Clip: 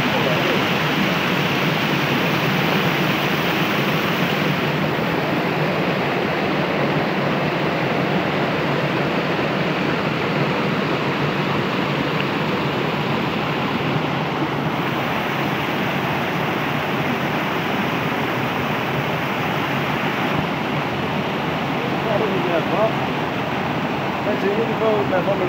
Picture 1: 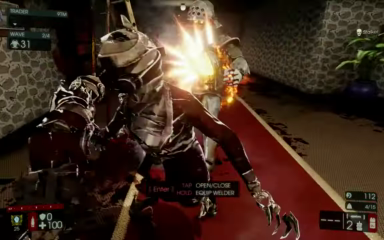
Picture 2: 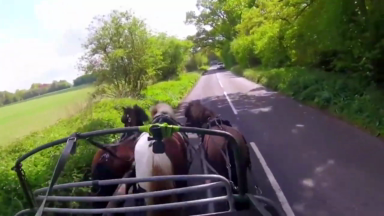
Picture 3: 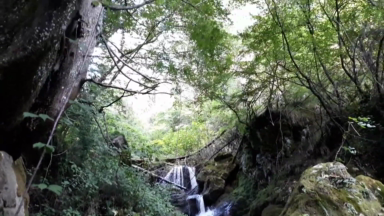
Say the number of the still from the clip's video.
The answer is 3